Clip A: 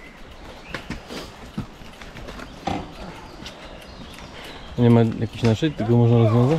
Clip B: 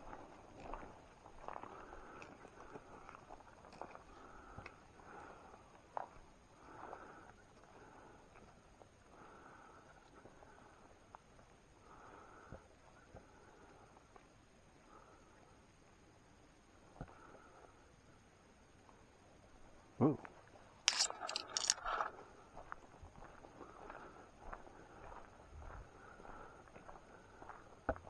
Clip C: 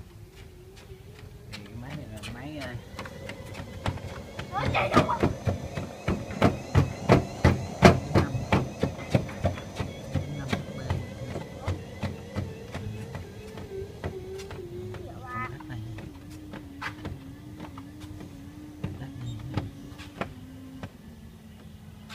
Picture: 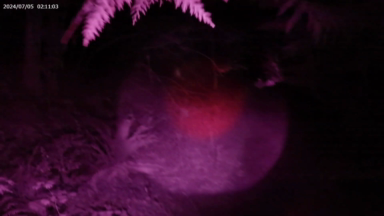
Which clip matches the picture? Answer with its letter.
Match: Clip B